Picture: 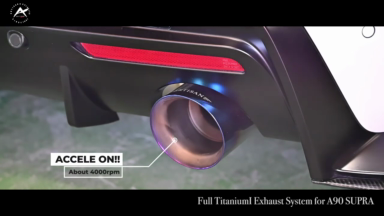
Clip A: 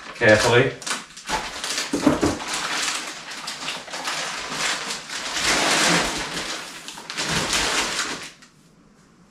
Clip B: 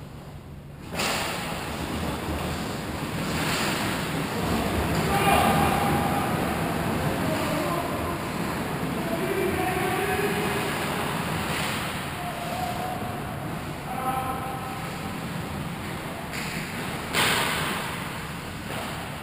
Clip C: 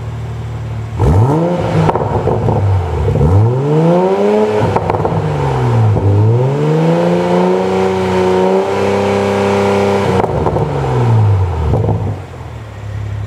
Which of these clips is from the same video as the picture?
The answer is C